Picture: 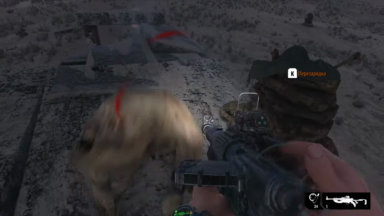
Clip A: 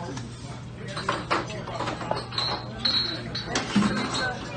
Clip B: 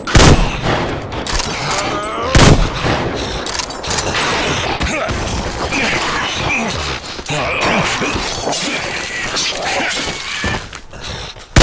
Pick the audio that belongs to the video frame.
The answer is B